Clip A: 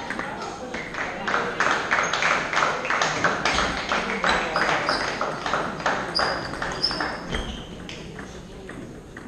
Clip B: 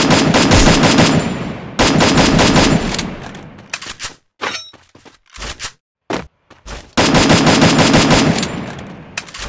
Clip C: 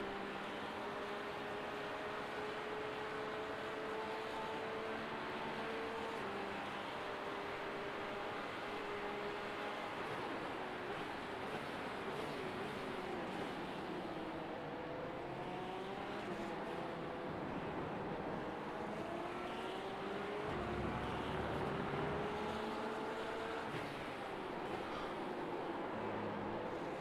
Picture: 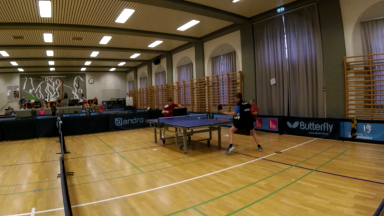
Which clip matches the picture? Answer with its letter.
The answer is A